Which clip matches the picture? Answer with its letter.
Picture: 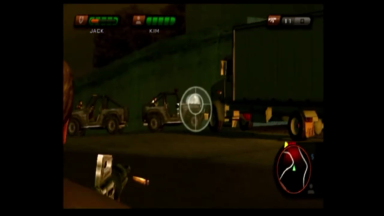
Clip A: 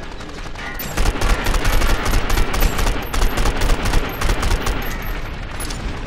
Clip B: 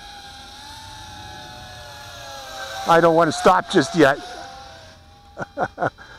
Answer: A